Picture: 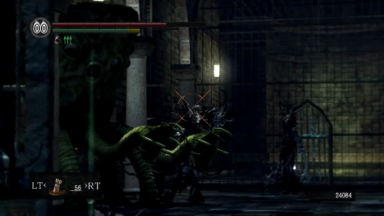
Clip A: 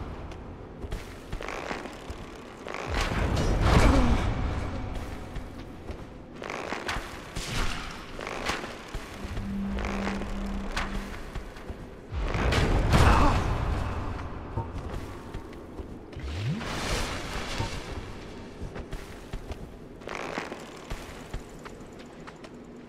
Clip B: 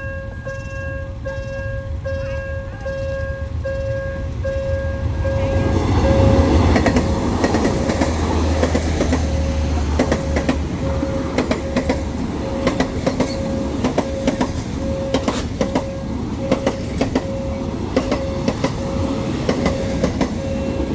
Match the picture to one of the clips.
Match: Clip A